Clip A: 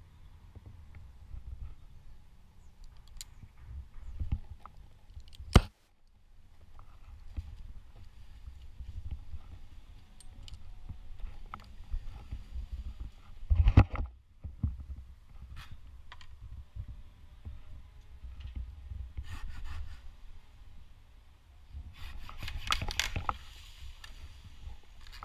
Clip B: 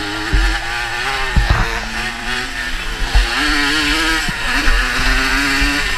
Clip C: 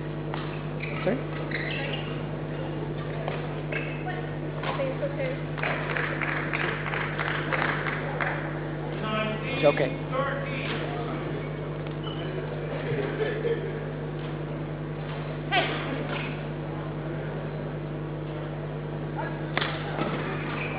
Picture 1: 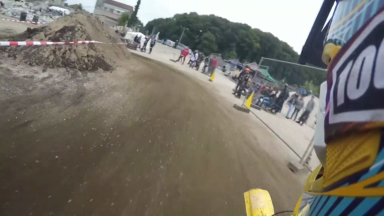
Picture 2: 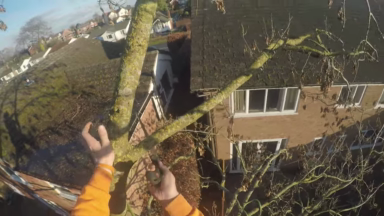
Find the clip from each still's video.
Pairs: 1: B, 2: A